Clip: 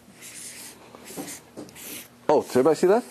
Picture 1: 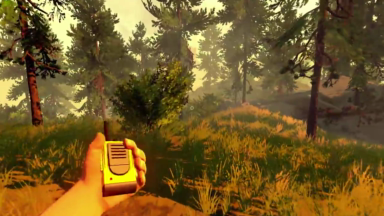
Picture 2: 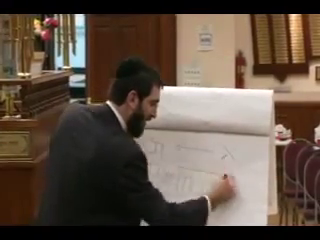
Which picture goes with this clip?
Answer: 2